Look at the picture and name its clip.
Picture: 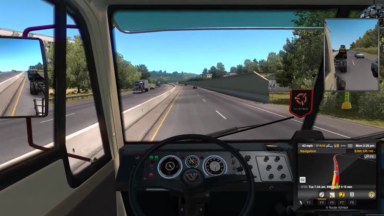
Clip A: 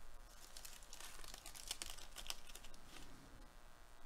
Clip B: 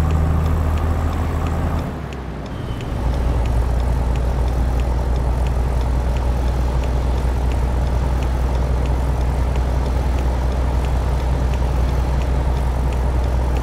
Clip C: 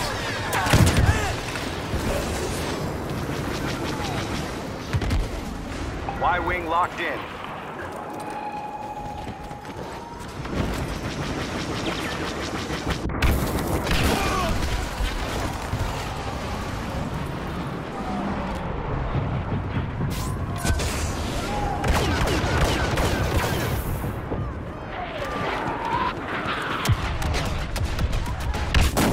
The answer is B